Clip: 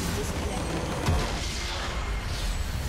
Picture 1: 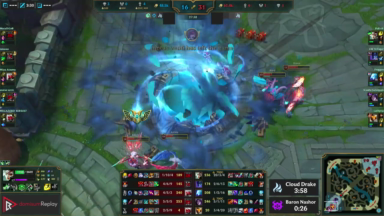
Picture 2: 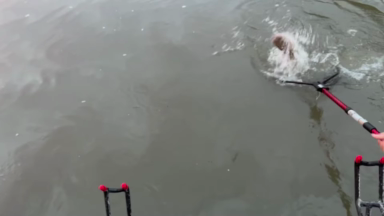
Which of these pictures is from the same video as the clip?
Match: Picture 1